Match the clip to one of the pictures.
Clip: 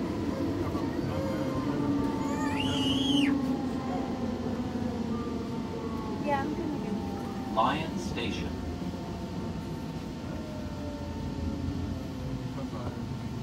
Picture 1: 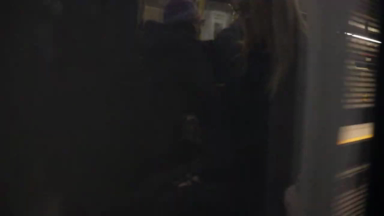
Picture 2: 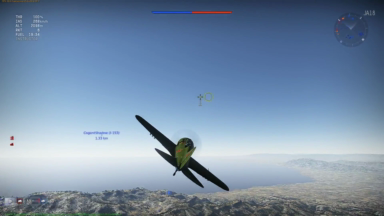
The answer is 1